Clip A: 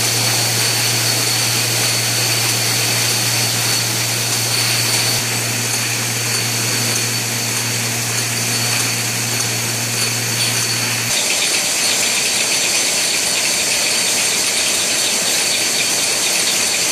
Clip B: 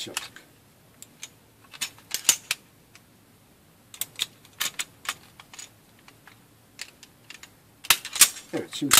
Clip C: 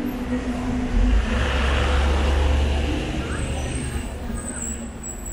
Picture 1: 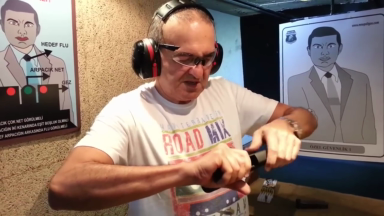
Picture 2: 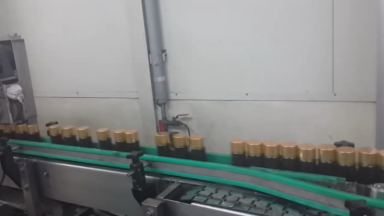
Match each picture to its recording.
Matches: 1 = B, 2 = A